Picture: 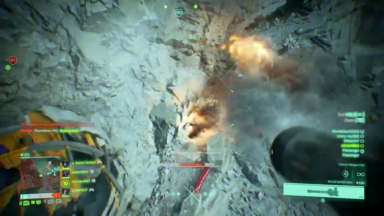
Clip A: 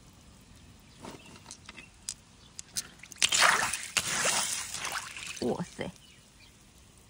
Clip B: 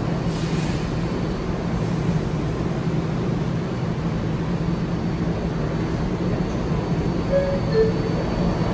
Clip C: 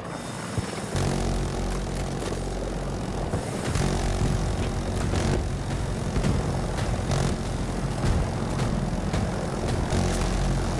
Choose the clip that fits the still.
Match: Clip C